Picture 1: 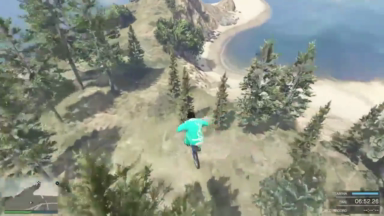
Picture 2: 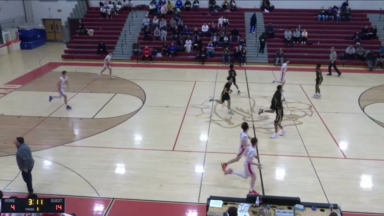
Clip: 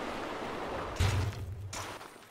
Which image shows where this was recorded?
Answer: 1